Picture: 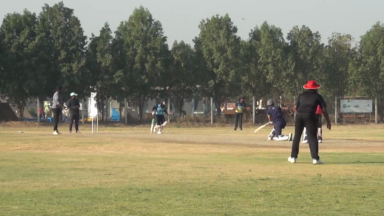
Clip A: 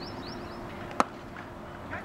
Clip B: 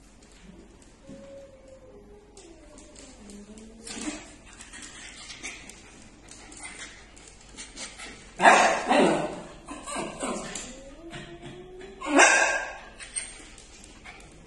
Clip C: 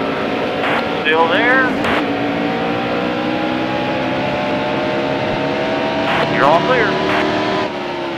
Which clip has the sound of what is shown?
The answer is A